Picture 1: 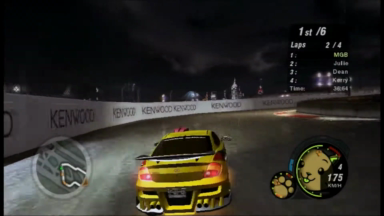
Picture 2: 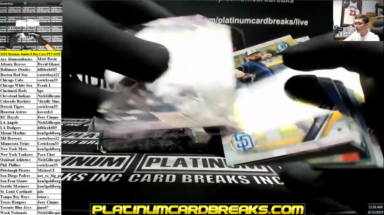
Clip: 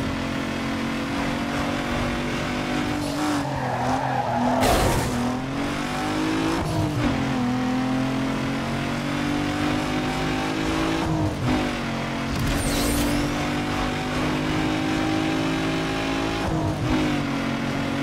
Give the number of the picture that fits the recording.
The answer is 1